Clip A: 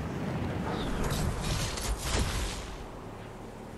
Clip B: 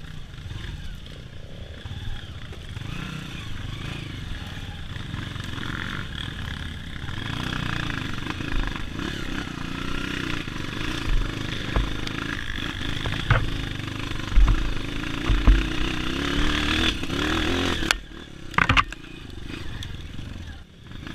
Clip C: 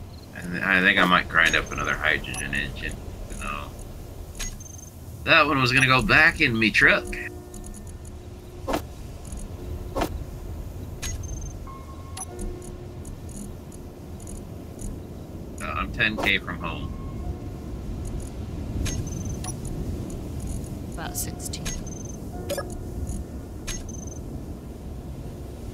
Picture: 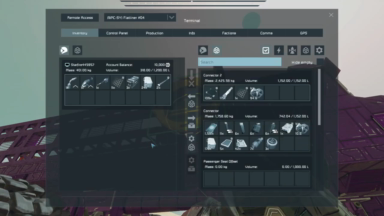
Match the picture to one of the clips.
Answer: C